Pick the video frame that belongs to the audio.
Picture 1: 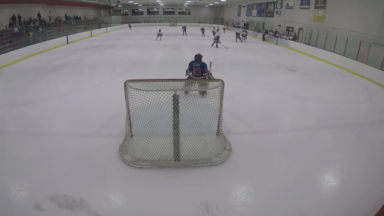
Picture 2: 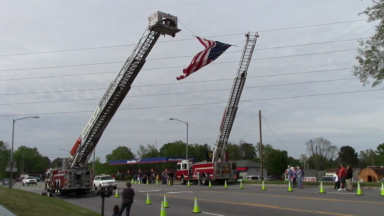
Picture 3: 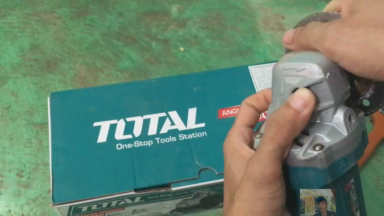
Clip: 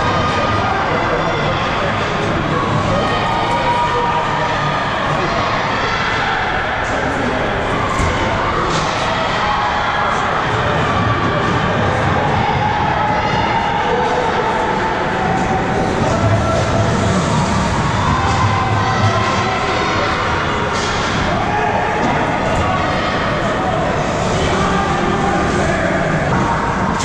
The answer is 1